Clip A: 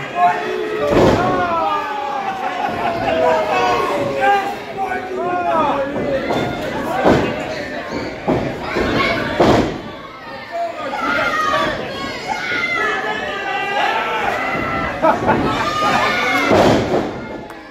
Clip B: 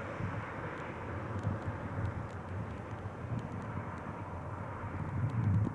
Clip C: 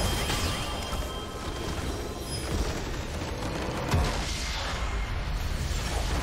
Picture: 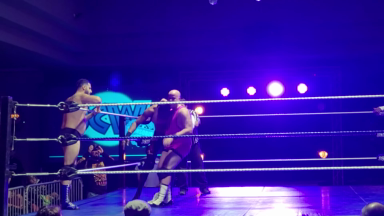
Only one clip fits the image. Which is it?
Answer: A